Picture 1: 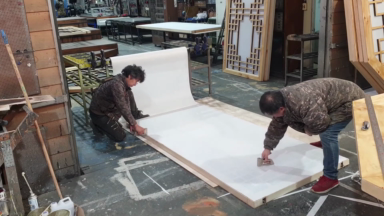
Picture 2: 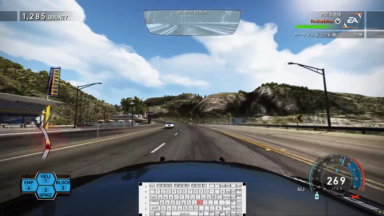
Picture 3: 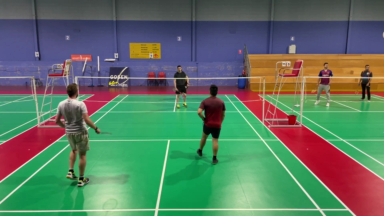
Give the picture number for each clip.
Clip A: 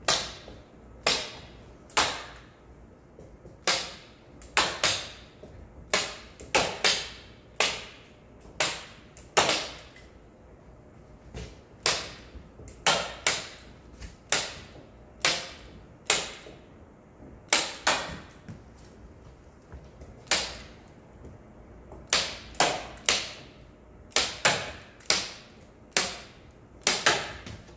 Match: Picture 1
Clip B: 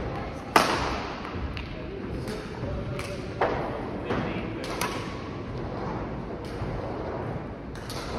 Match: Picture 3